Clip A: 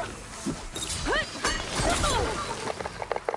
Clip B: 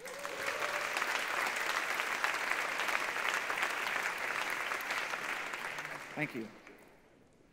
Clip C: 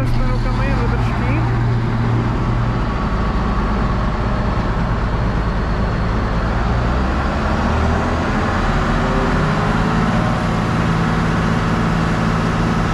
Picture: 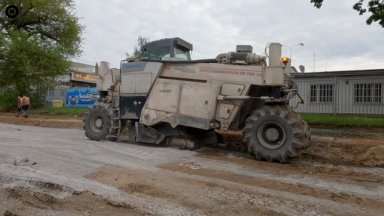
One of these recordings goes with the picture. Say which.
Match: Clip C